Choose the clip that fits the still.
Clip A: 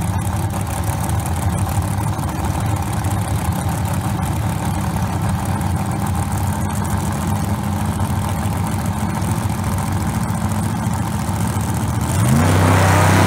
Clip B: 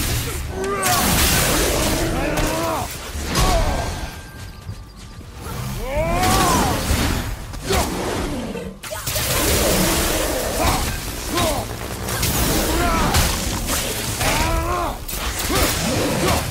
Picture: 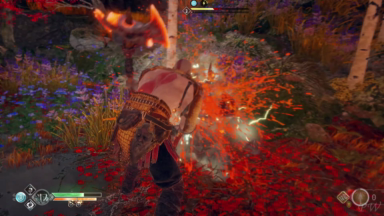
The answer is B